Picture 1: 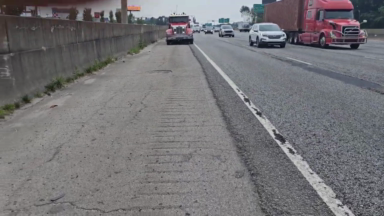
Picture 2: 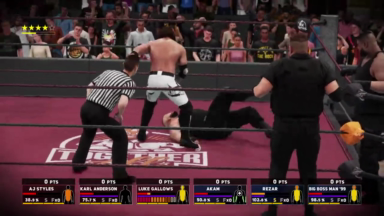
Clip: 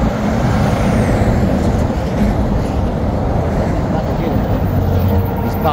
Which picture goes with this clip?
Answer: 1